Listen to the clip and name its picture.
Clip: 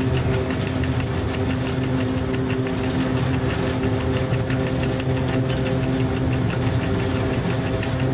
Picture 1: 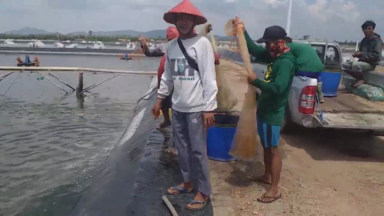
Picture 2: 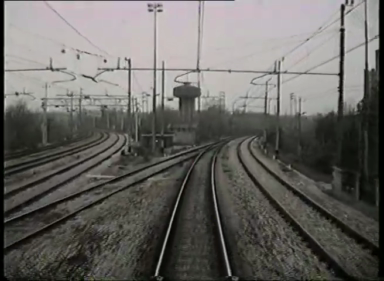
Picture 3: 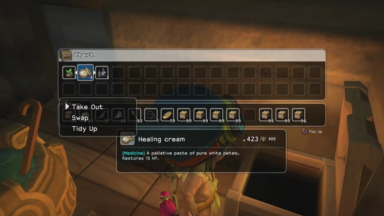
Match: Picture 2